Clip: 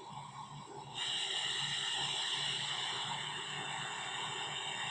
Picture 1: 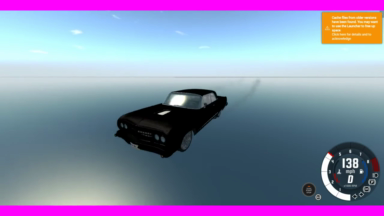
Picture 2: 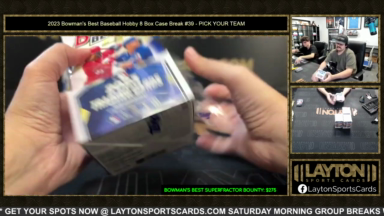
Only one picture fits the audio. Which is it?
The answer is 1